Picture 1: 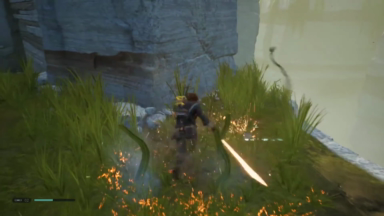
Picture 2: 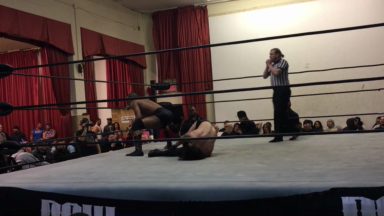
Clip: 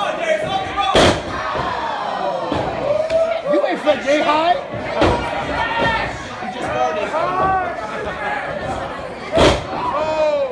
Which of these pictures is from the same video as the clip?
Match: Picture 2